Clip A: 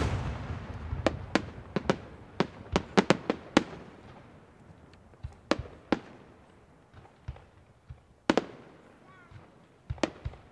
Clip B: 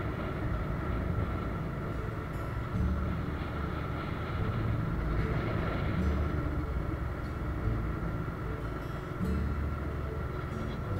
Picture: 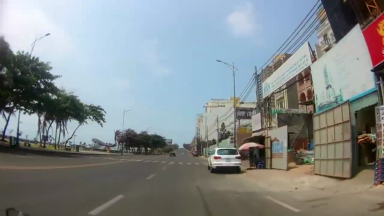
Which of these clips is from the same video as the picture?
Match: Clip B